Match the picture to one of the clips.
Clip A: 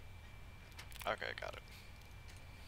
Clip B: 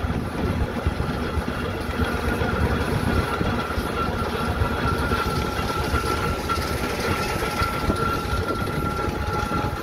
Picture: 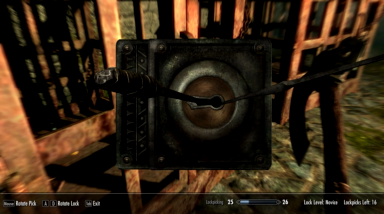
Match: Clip A